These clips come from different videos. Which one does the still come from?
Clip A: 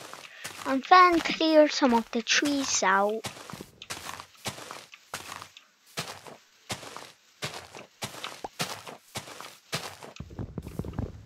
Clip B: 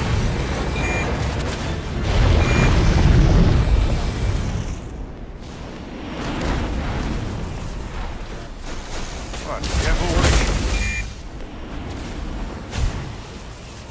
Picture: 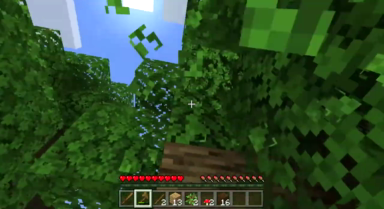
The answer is A